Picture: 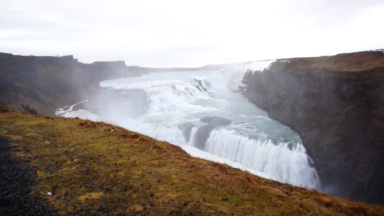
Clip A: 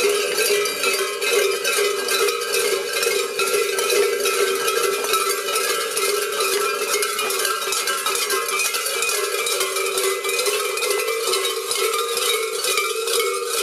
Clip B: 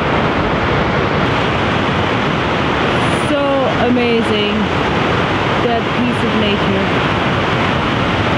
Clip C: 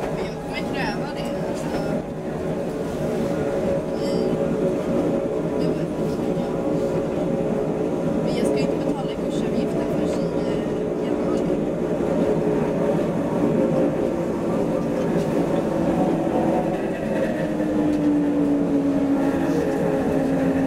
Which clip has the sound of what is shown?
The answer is B